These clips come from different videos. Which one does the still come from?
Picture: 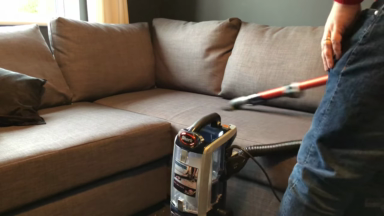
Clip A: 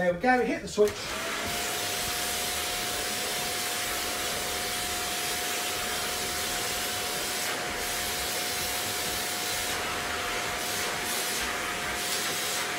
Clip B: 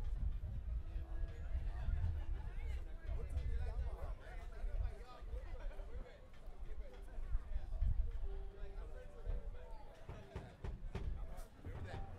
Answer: A